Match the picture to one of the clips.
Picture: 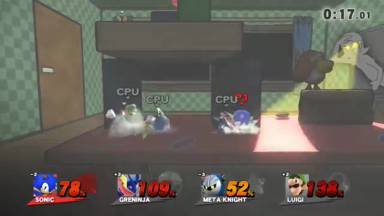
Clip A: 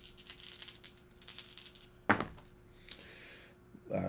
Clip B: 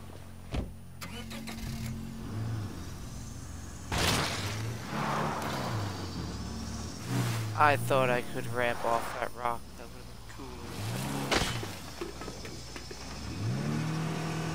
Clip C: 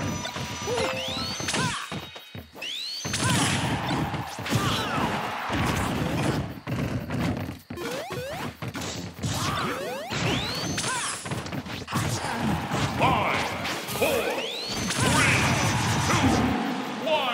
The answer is C